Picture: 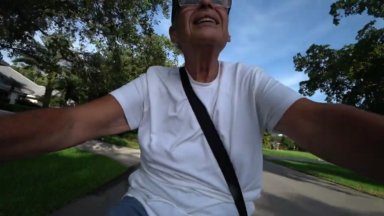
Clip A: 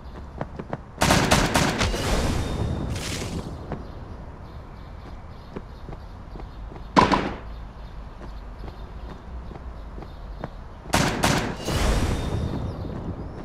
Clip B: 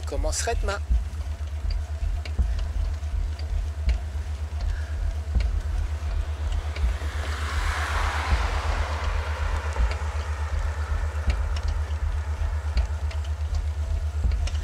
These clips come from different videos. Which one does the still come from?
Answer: B